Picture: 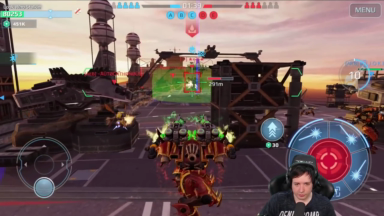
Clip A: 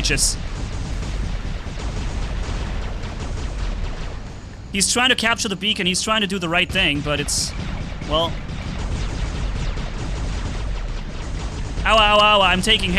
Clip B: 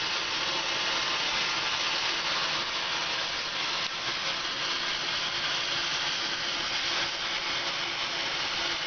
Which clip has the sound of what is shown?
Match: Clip A